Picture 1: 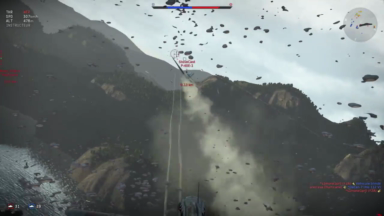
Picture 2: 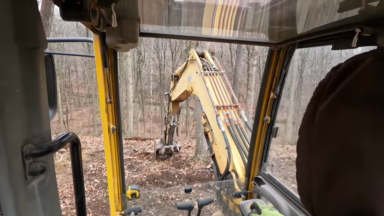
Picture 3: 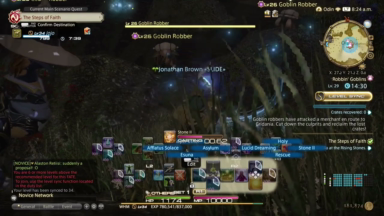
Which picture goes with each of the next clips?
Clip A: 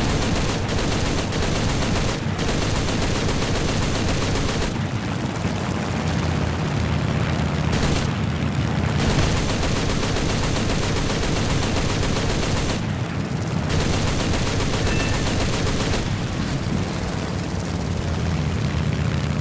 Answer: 1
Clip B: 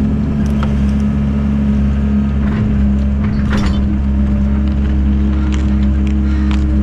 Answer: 2